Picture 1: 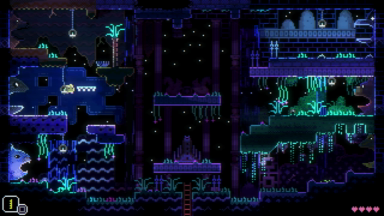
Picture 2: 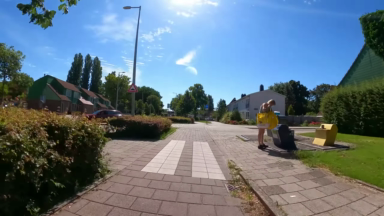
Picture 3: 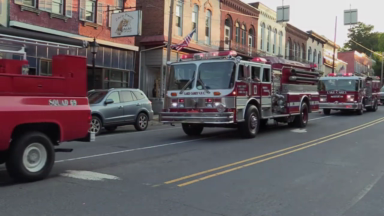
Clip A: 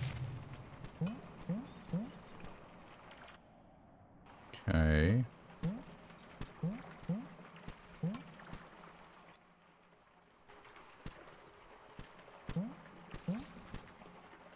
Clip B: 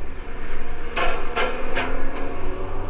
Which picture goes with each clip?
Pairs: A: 1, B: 2